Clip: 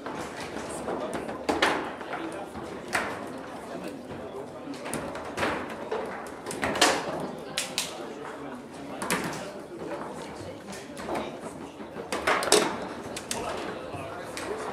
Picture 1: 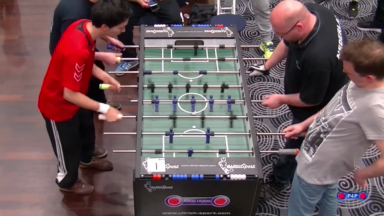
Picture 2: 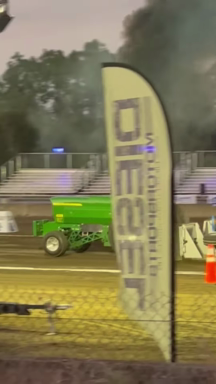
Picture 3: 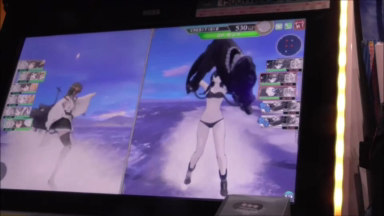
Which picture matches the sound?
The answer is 1